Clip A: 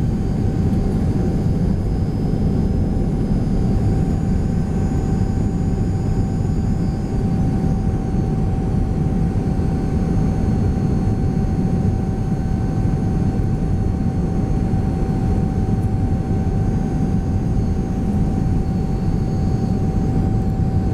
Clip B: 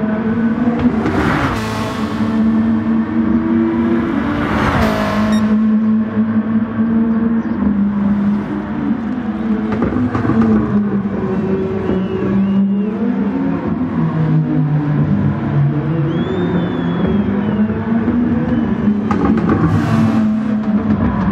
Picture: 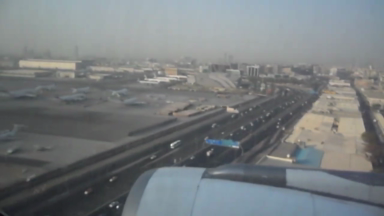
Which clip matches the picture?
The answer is A